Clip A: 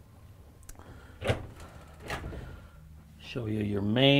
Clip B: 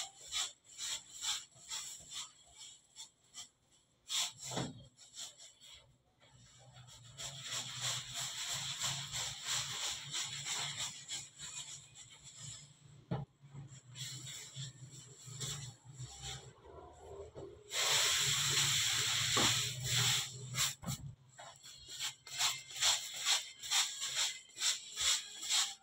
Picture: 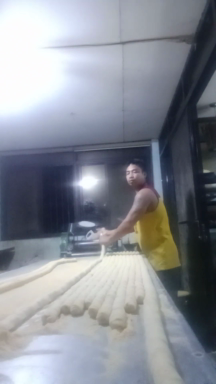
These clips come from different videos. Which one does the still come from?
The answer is B